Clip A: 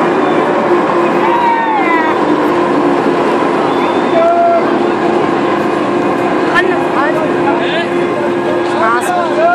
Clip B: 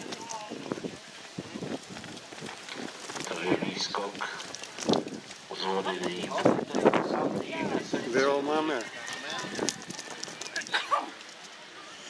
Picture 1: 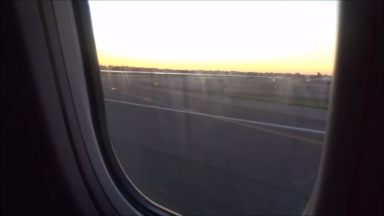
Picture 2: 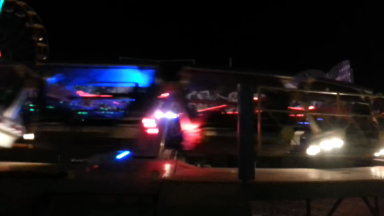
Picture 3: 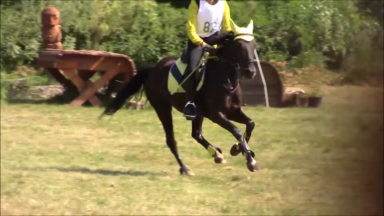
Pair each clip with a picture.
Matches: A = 2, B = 3